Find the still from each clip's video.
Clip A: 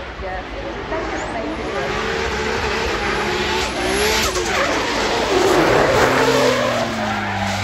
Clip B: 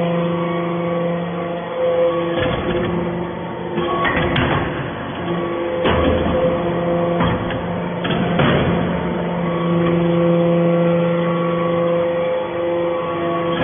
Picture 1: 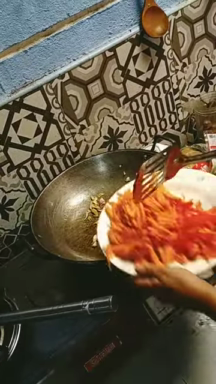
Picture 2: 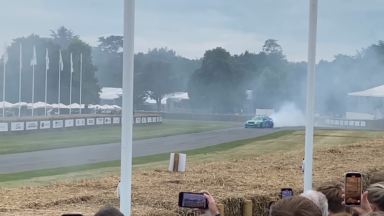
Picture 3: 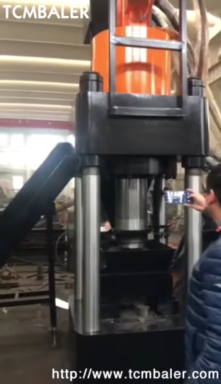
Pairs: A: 2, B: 3